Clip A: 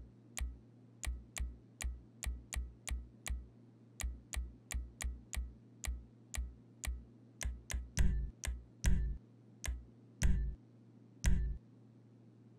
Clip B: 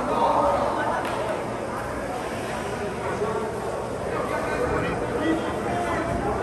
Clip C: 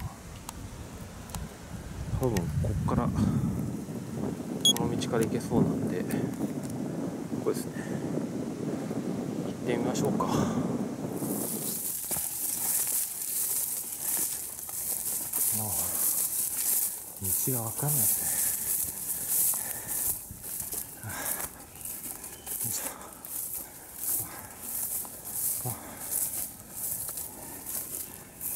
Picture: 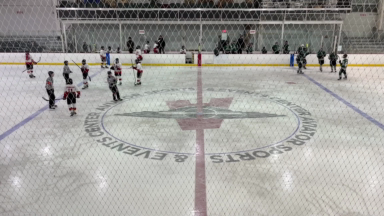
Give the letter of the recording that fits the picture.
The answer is B